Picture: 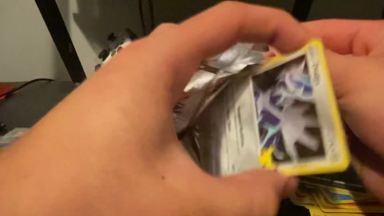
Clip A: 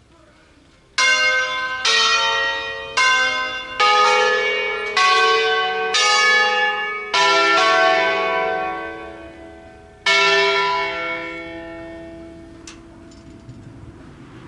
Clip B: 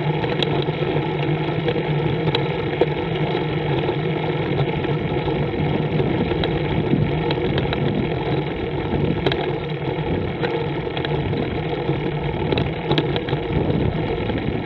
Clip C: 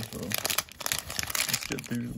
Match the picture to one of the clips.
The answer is C